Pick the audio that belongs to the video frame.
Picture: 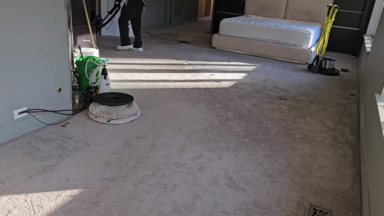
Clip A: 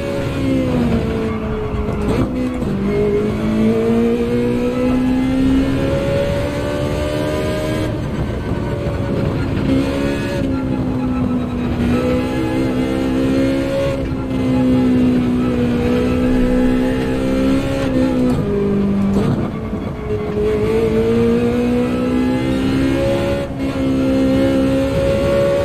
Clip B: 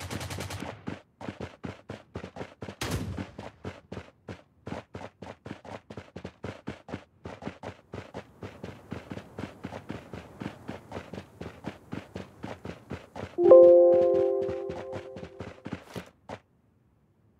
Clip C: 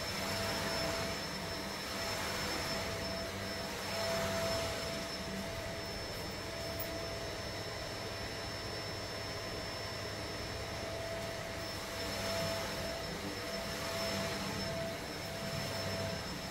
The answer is C